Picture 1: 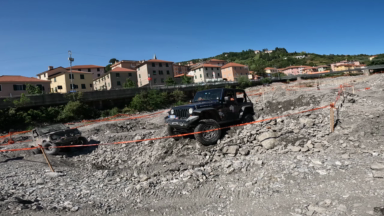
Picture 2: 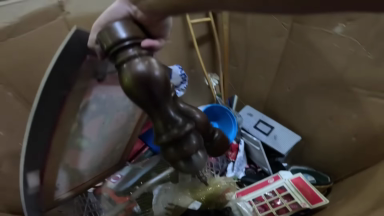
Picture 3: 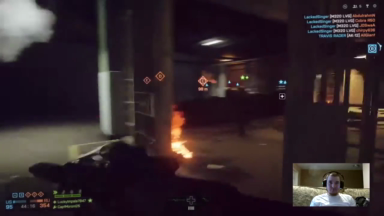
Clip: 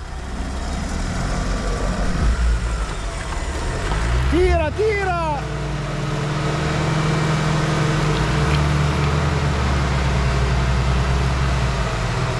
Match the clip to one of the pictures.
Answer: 1